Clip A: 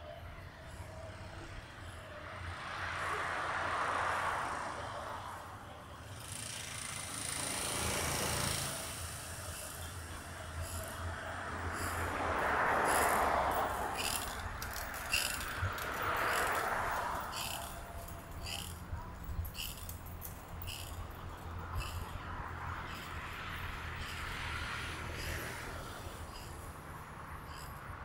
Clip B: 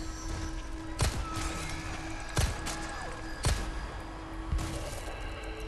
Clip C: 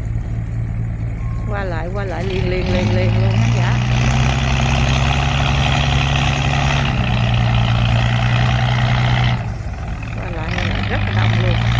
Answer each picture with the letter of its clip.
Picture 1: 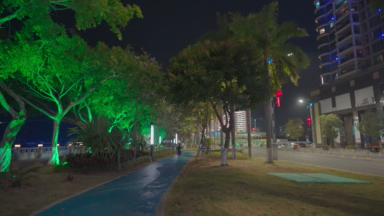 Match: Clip A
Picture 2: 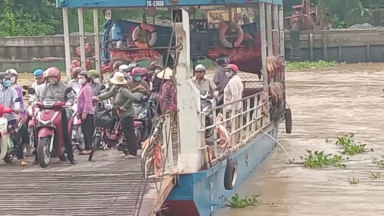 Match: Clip C